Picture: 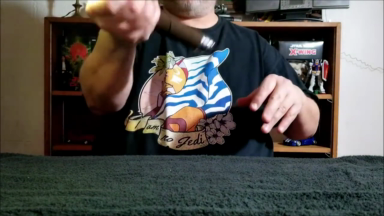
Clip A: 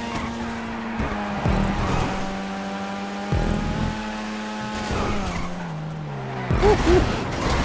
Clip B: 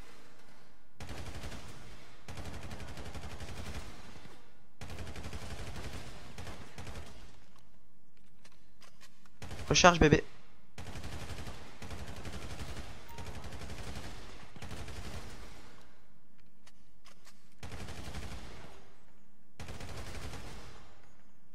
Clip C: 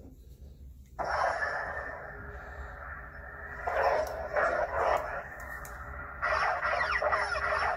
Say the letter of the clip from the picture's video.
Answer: C